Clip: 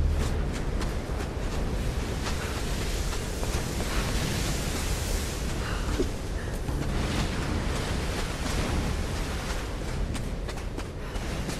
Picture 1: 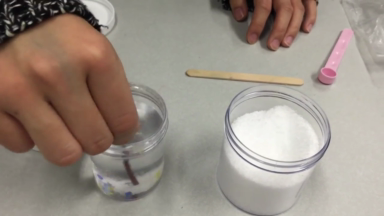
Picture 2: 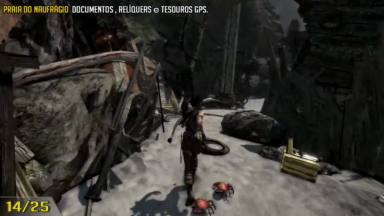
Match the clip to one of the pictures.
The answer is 2